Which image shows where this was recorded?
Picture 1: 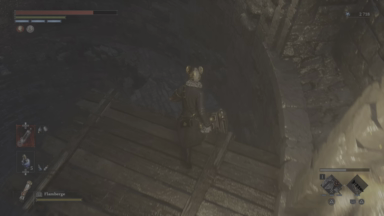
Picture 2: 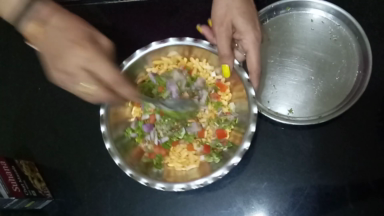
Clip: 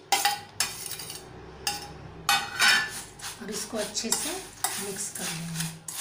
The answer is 2